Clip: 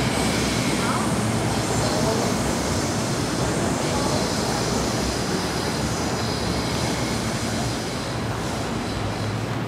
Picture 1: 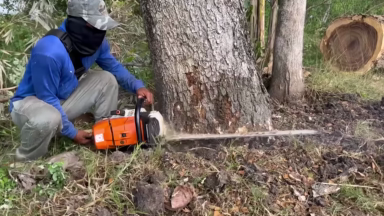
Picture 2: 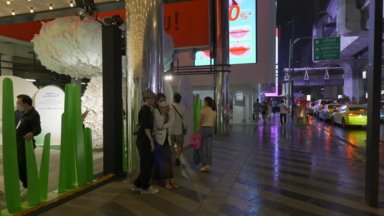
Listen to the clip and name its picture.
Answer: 2